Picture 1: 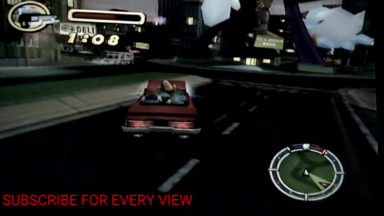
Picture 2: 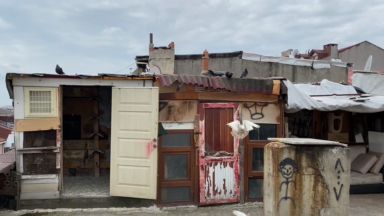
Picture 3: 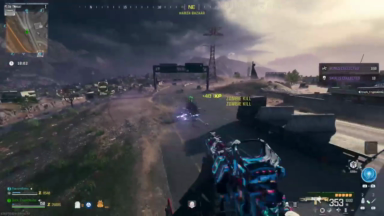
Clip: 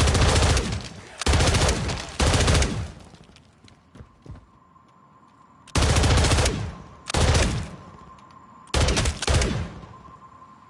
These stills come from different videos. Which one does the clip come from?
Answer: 3